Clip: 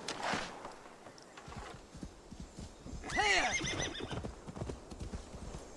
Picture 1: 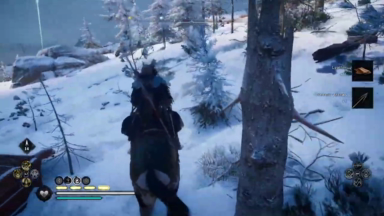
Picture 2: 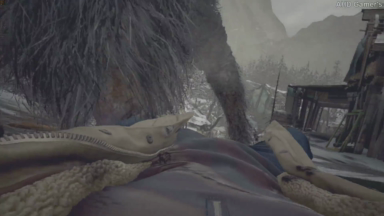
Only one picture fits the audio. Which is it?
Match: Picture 1